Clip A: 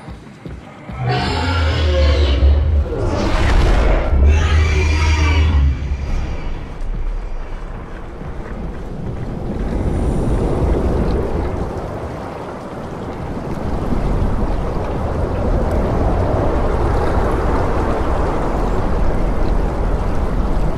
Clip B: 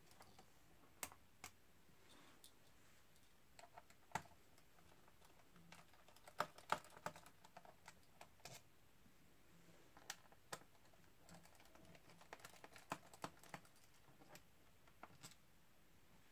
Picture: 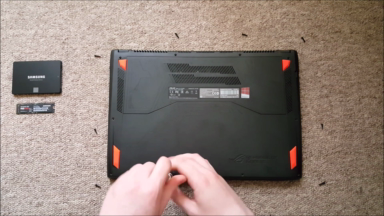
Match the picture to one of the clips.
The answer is B